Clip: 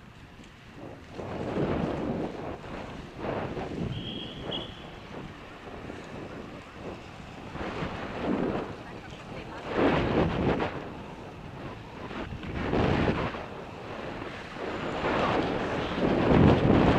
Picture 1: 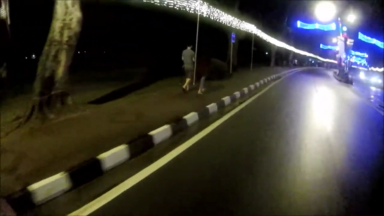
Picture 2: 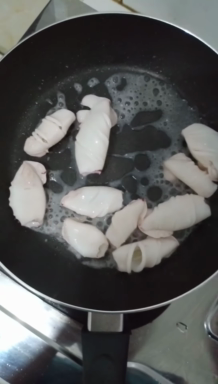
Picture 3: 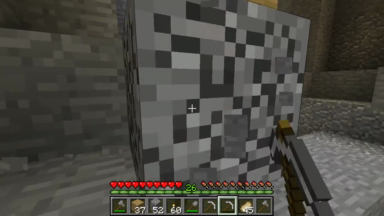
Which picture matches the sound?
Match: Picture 1